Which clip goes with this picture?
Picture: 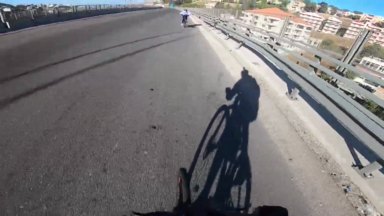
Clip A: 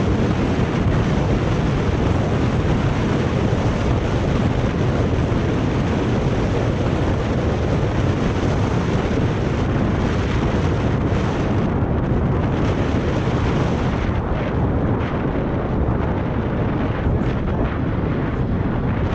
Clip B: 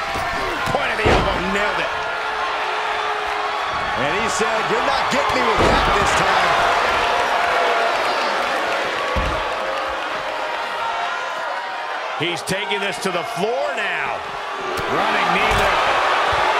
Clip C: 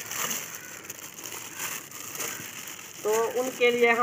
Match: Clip A